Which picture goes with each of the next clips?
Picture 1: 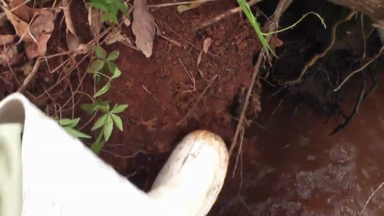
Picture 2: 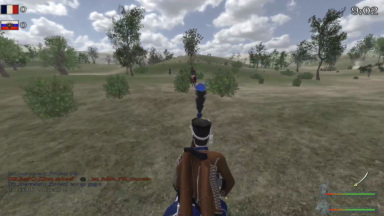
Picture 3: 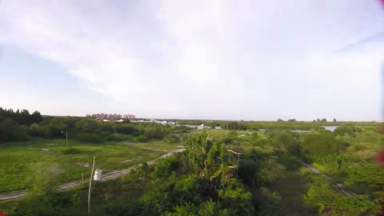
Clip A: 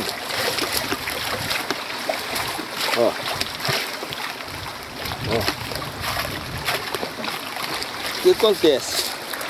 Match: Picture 1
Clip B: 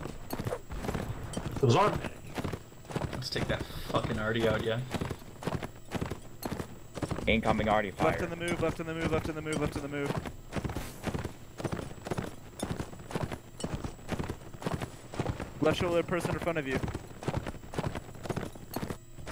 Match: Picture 2